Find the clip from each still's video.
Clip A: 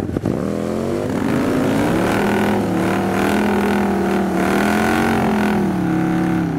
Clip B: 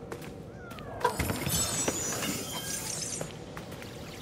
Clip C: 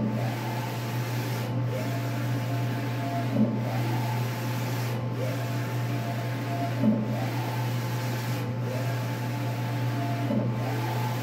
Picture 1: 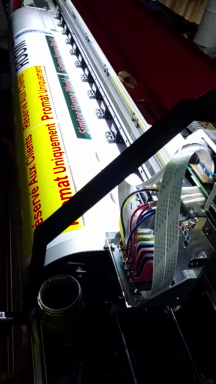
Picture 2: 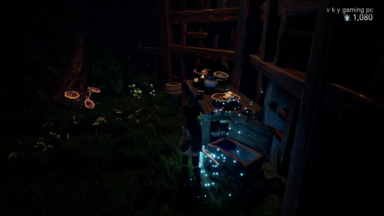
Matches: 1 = C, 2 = B